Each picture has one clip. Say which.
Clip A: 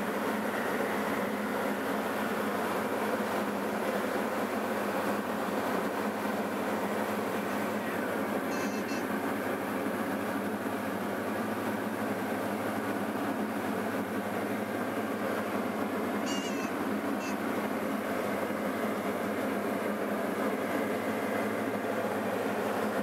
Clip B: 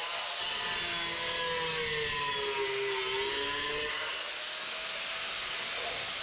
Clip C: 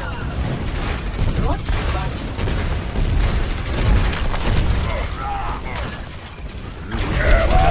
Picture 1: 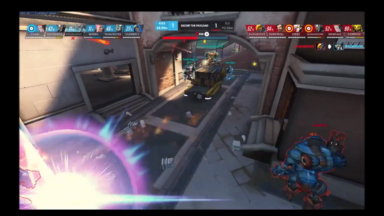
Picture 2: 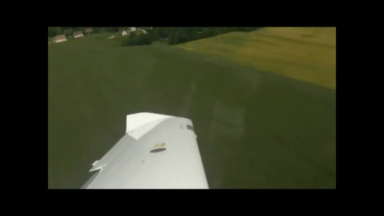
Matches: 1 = C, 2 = A